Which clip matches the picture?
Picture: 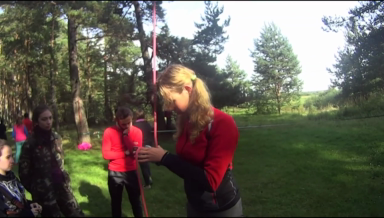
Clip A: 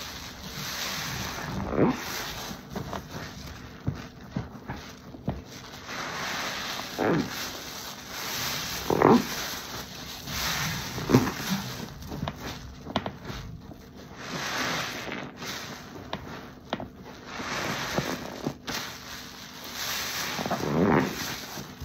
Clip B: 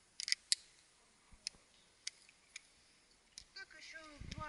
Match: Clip B